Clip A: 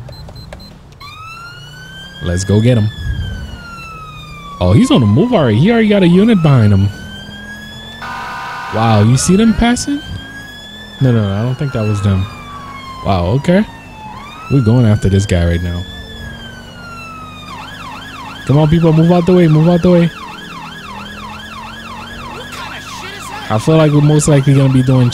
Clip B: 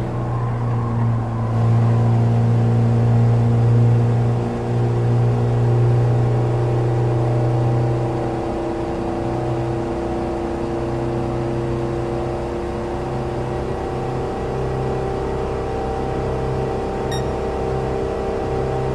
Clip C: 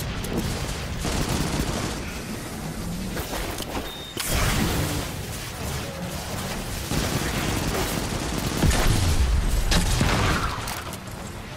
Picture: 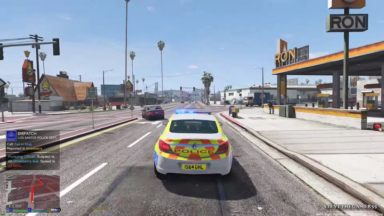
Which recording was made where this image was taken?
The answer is A